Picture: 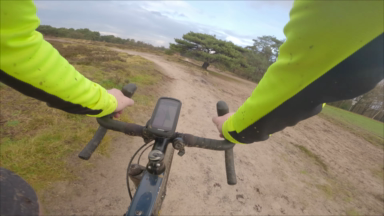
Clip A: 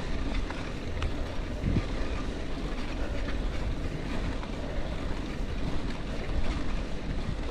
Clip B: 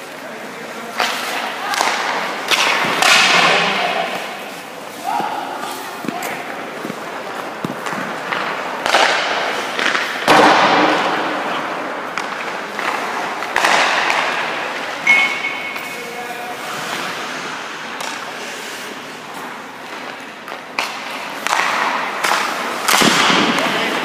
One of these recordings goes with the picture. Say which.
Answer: A